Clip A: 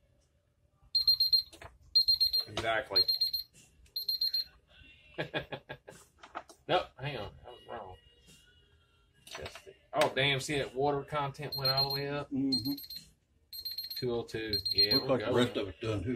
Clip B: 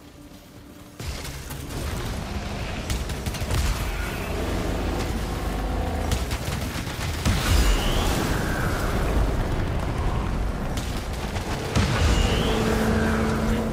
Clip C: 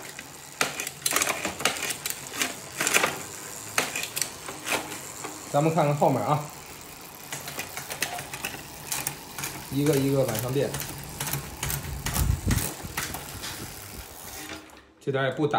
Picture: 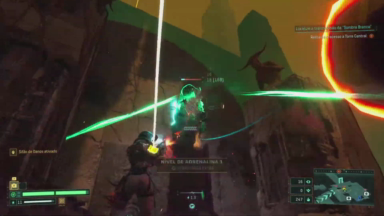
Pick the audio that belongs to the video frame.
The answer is B